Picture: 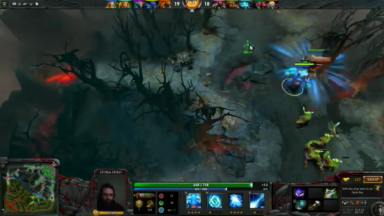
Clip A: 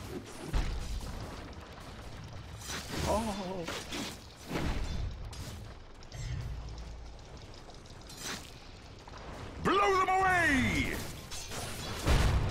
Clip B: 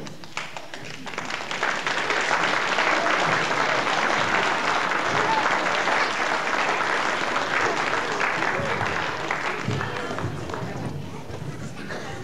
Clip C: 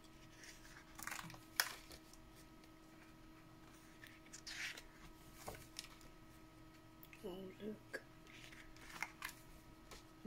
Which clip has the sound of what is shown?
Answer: A